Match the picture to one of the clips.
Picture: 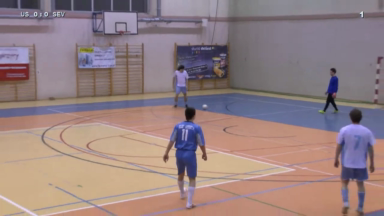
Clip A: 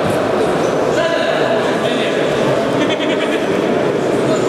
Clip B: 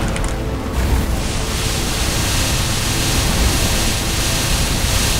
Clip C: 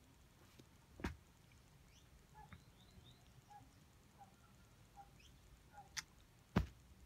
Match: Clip A